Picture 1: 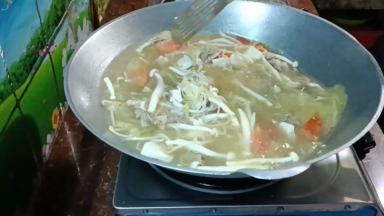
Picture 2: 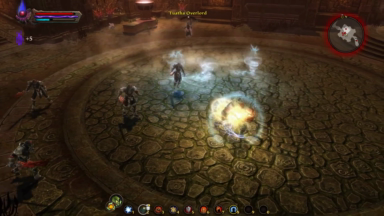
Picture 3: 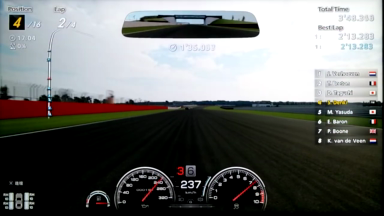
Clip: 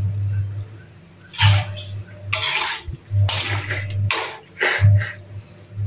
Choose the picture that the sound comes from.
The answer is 1